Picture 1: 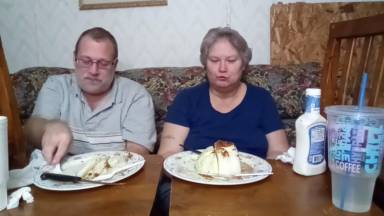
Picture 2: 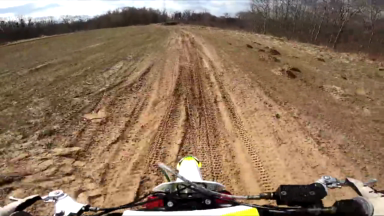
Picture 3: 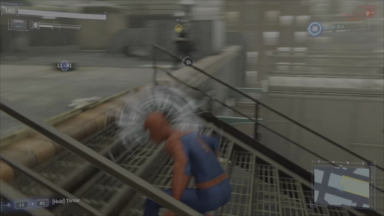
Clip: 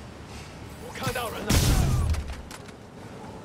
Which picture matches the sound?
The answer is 3